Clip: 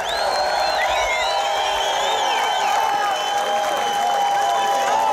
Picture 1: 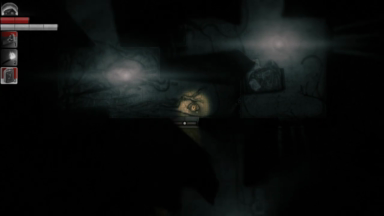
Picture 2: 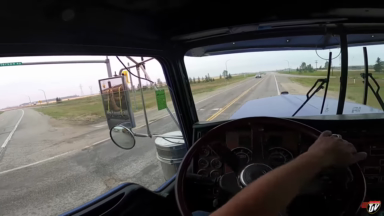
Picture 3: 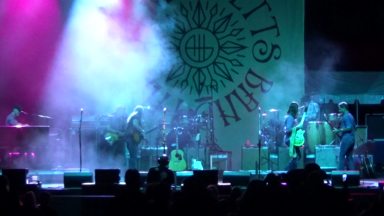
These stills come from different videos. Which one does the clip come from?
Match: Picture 3